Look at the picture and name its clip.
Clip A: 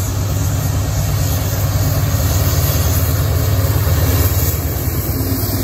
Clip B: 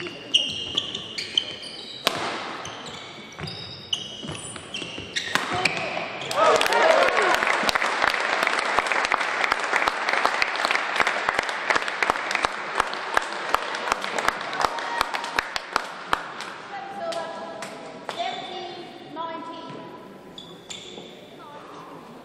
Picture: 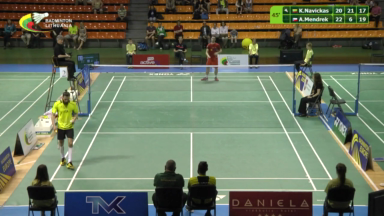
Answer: B